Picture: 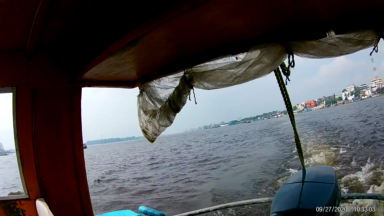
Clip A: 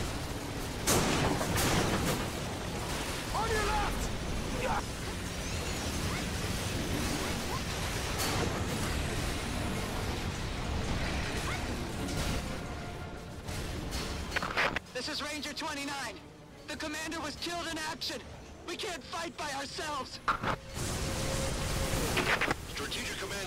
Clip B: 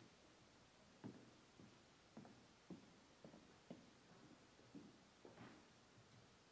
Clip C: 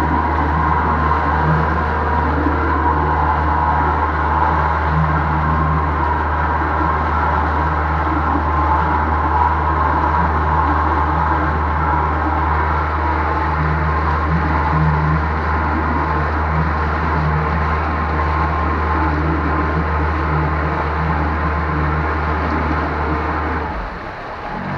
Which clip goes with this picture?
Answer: C